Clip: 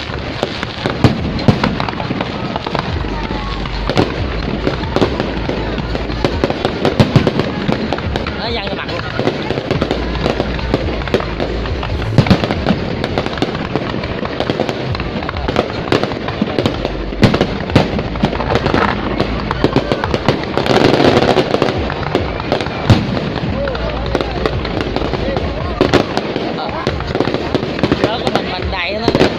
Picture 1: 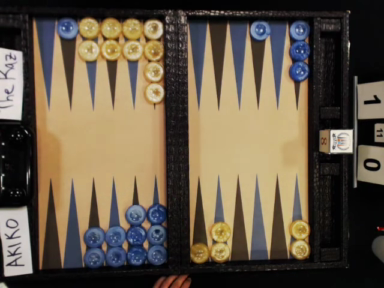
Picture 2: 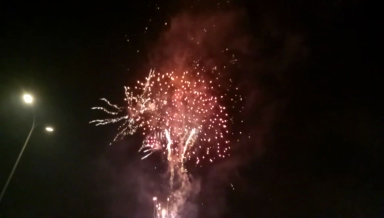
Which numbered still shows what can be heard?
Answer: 2